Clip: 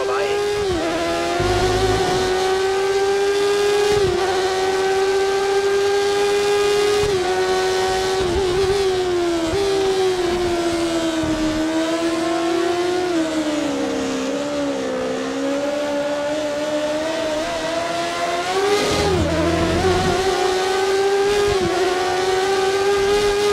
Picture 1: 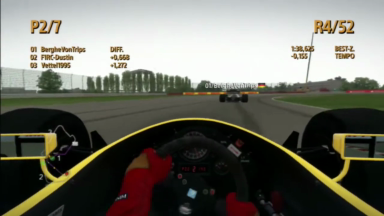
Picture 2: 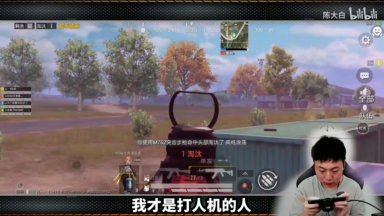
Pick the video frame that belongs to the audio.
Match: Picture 1